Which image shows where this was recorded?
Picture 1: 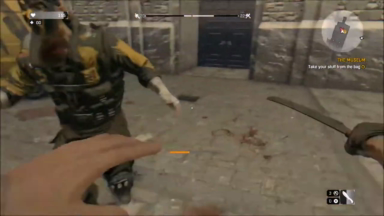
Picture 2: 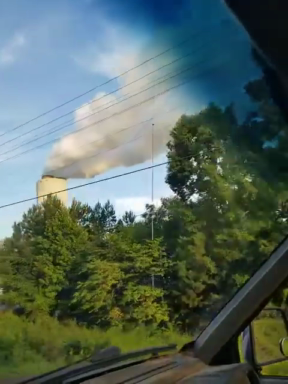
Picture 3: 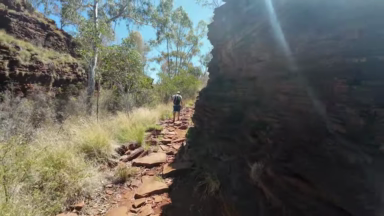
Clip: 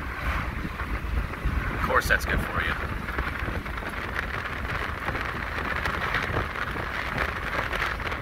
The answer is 2